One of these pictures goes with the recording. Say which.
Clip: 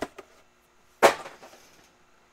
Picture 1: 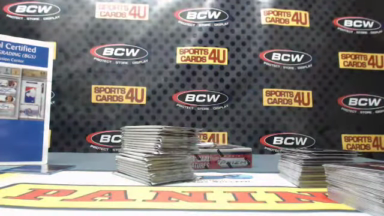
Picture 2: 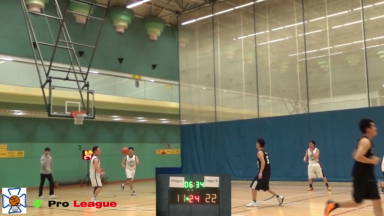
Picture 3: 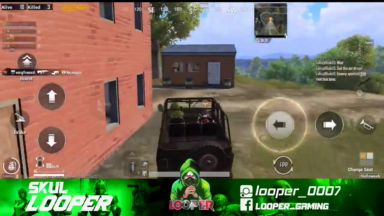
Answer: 1